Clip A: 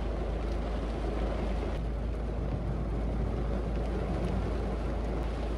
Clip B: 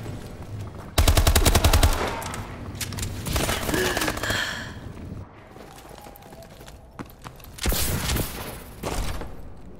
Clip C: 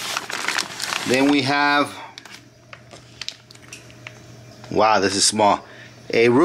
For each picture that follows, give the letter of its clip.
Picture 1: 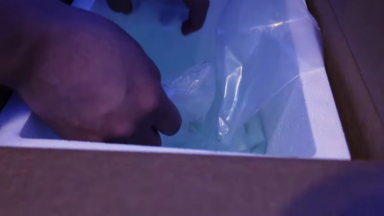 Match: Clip C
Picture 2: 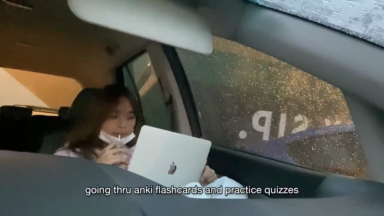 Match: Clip A